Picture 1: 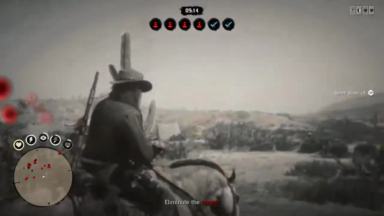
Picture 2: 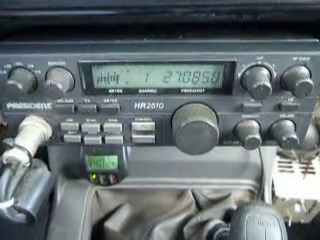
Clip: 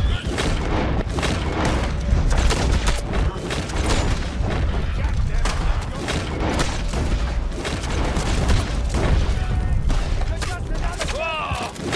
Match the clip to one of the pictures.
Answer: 1